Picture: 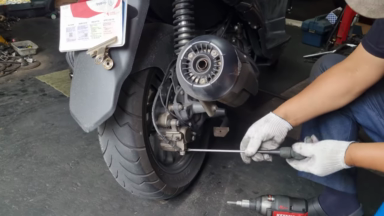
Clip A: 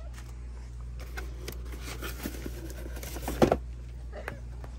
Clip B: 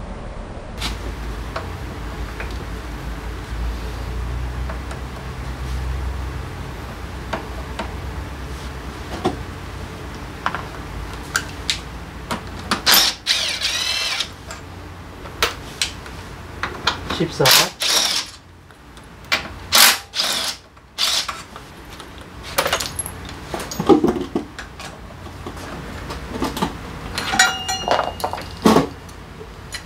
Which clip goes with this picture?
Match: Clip B